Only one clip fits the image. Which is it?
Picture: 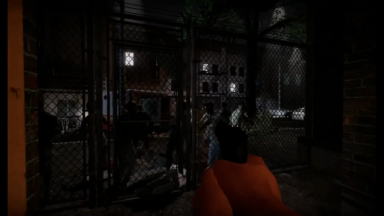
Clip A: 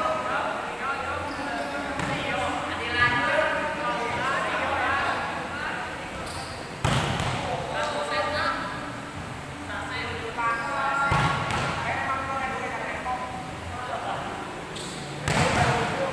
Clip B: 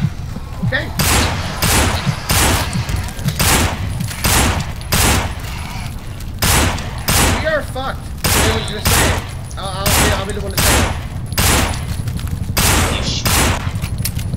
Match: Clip B